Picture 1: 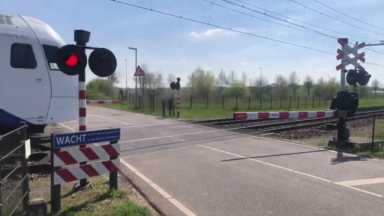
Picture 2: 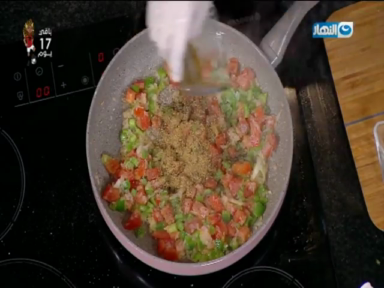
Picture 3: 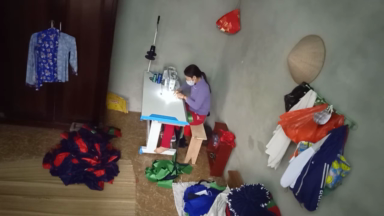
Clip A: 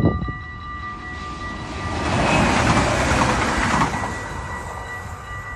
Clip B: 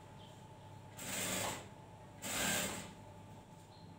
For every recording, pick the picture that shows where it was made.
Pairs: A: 1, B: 3